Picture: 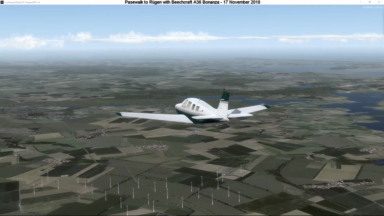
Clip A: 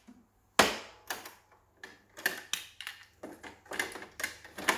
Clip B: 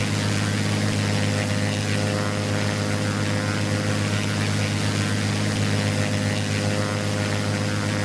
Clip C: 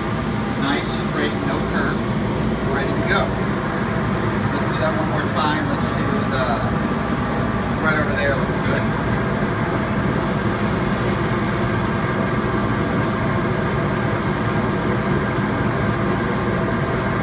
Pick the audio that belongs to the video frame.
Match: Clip B